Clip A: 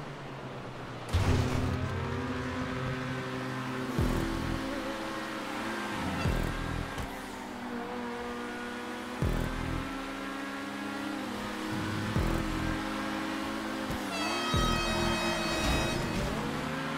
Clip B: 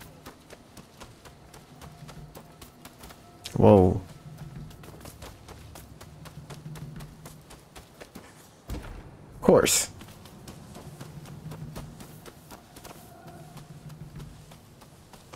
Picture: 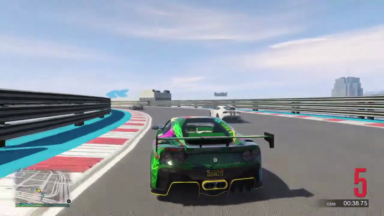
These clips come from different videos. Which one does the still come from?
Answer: A